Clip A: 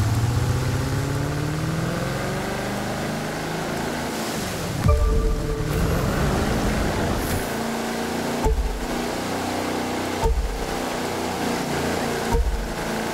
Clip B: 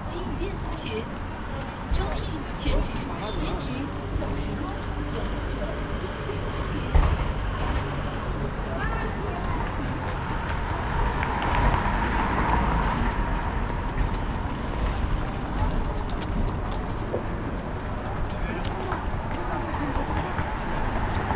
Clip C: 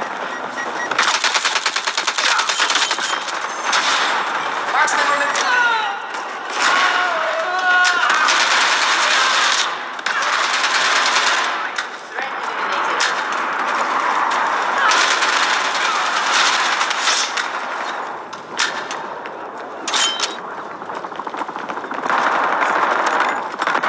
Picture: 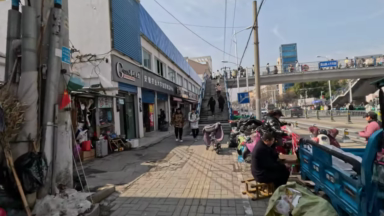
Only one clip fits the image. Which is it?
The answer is B